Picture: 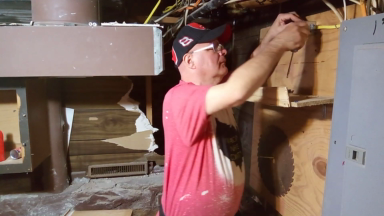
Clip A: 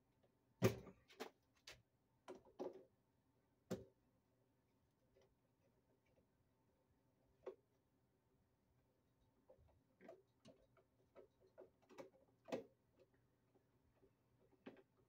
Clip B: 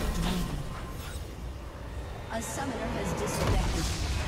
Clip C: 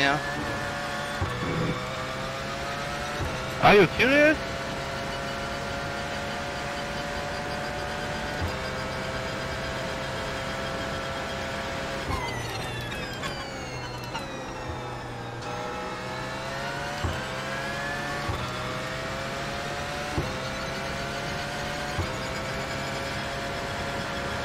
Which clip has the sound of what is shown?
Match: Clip A